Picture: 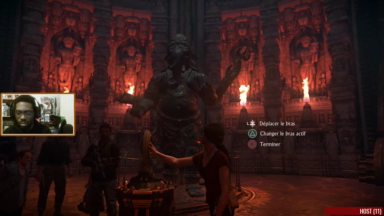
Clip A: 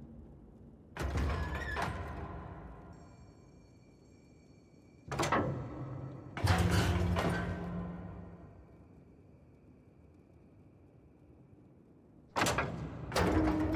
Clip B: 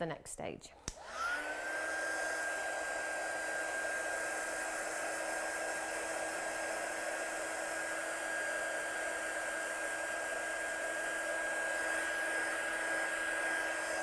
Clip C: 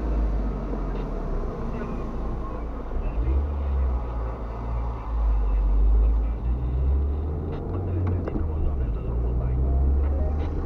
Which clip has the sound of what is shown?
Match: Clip A